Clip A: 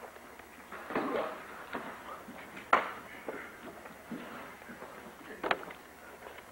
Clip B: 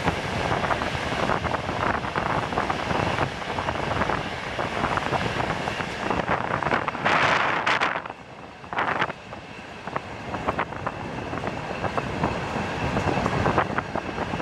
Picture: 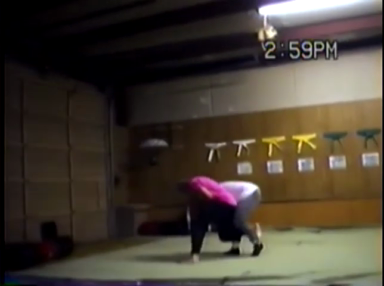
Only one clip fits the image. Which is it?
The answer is A